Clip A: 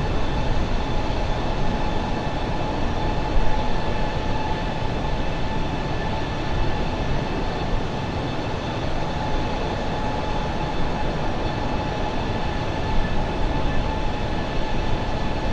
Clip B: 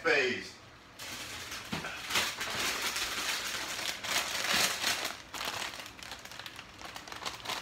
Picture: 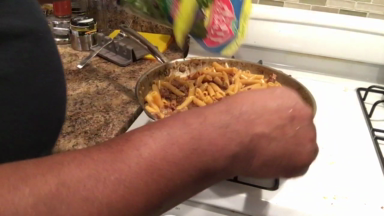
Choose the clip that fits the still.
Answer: B